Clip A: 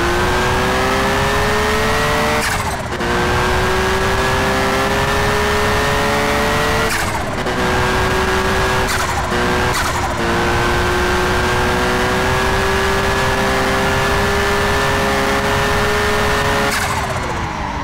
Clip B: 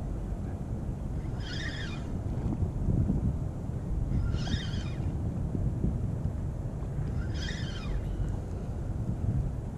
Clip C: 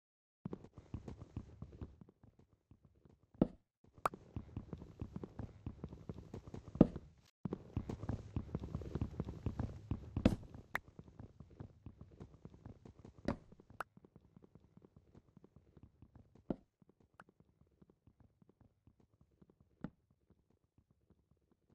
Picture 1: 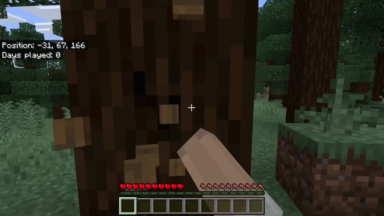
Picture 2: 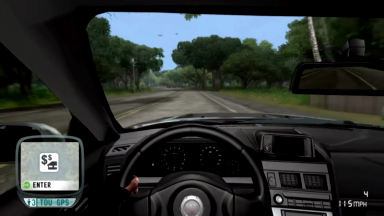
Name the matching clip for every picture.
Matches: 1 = C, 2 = A